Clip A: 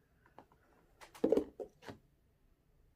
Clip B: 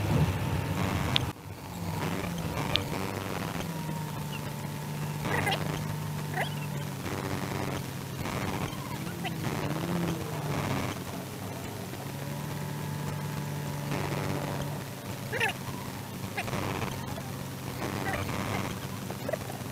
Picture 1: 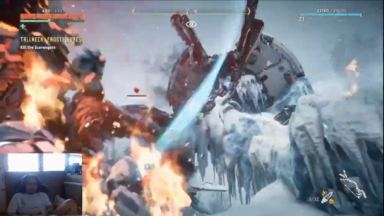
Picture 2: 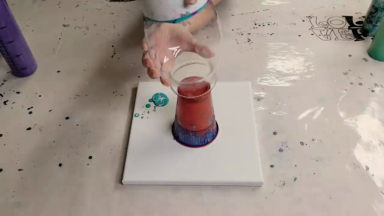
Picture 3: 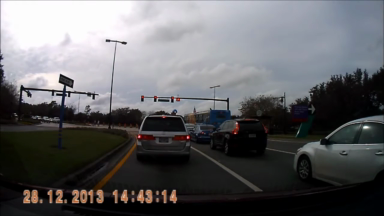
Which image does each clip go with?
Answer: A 2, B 3